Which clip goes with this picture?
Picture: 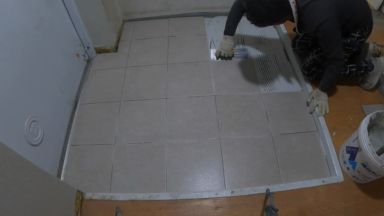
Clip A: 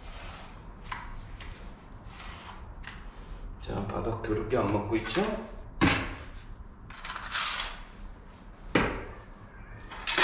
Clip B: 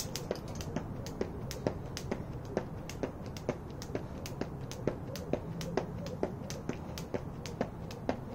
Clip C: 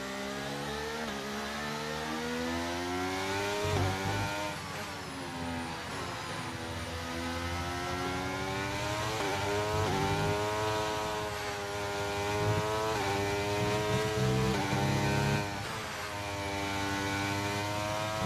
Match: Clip A